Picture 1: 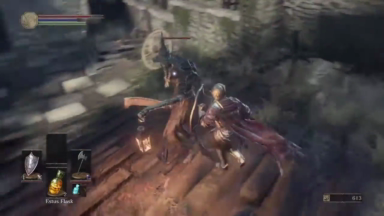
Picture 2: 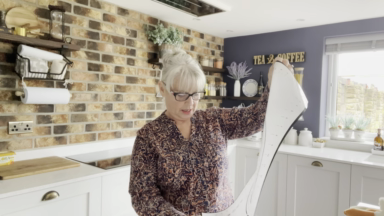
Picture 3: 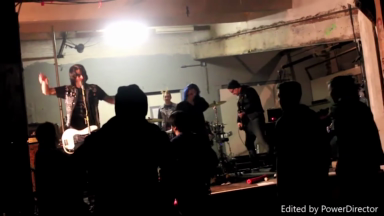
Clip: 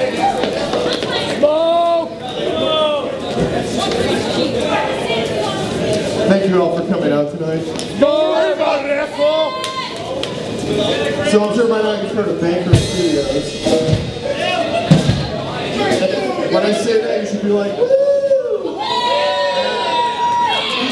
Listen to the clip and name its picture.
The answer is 3